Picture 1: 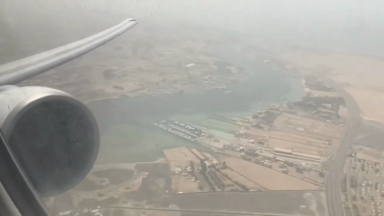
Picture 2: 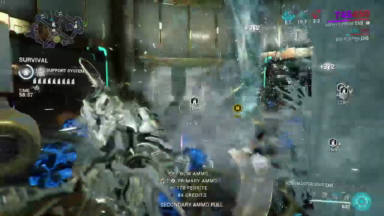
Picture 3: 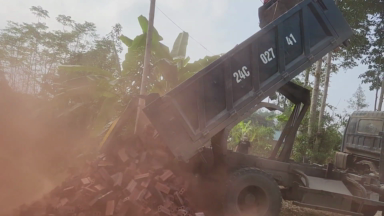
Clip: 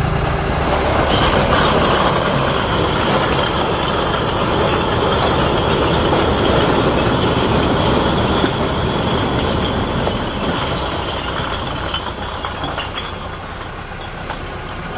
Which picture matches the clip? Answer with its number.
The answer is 3